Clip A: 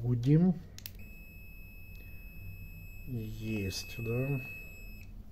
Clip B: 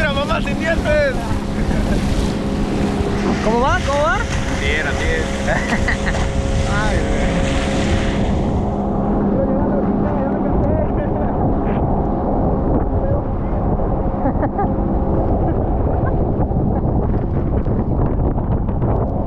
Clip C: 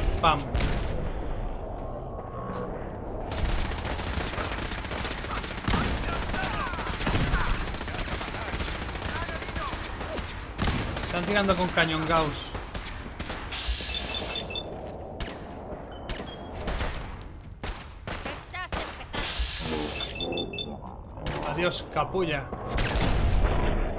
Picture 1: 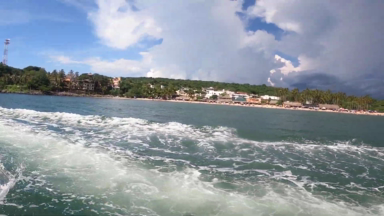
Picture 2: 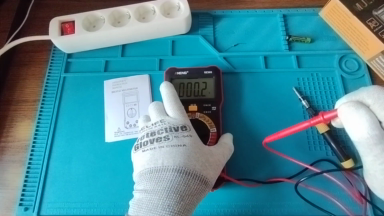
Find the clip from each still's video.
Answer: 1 B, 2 A